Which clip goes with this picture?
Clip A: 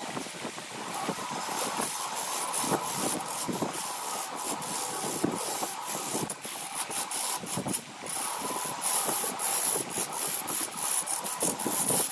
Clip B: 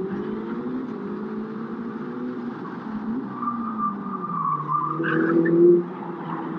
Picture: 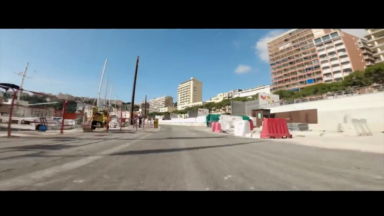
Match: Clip B